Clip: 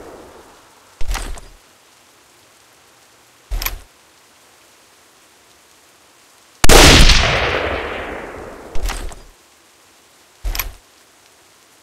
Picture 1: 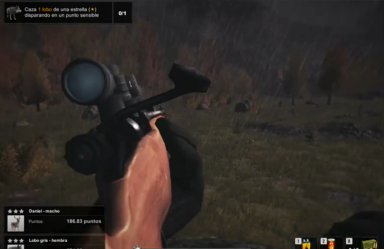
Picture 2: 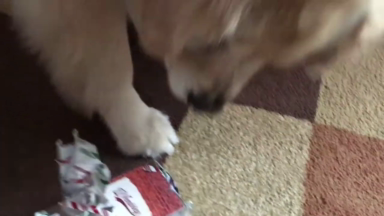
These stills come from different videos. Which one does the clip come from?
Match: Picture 1